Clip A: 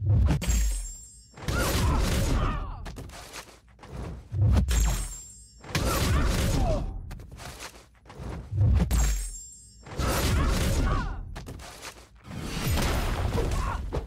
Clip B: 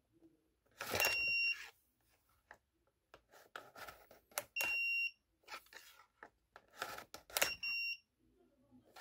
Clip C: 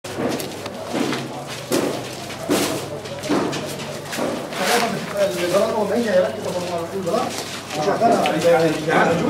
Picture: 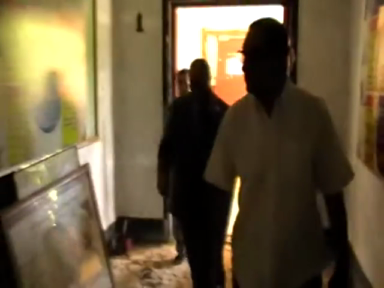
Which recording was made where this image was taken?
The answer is C